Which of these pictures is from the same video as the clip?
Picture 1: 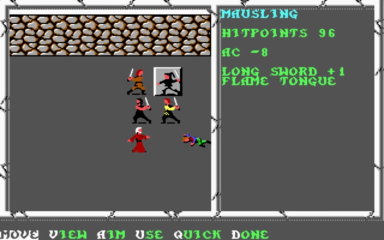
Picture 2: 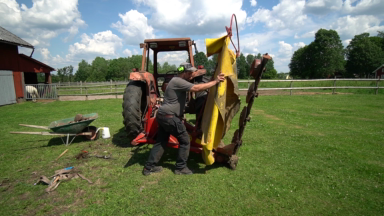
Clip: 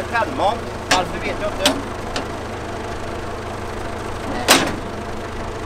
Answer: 2